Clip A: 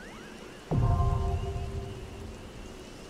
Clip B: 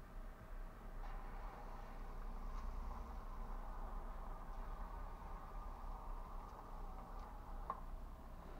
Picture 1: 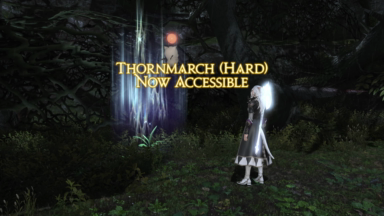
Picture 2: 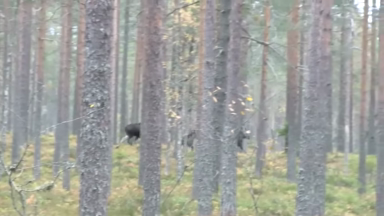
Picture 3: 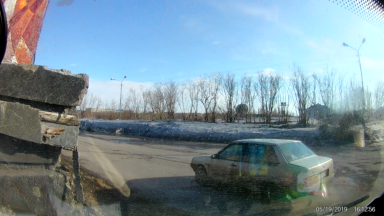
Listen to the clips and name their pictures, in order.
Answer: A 1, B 3